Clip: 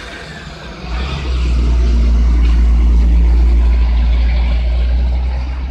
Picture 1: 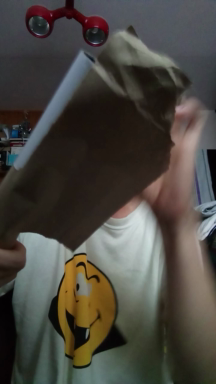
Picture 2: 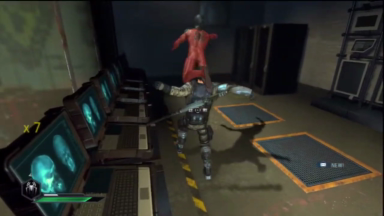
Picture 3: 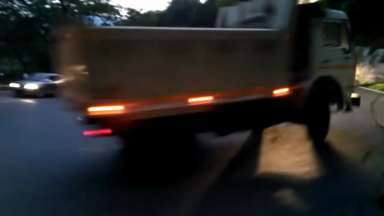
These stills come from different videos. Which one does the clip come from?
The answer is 3